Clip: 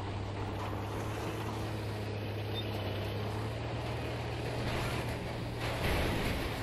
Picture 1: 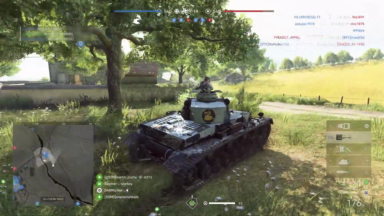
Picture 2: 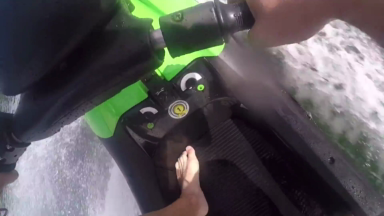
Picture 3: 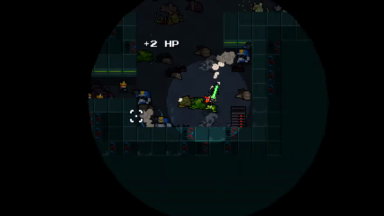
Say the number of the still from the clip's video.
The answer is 1